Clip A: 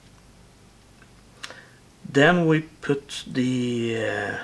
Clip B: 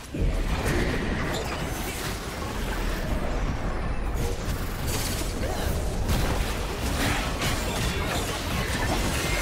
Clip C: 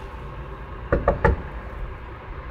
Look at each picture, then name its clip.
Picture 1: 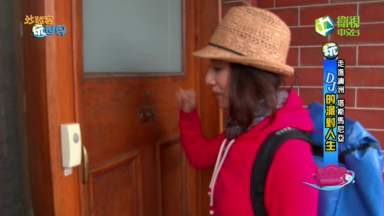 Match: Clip C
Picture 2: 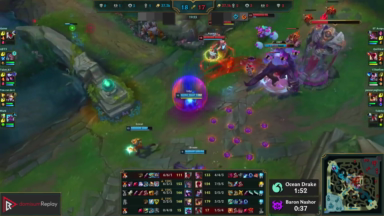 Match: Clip B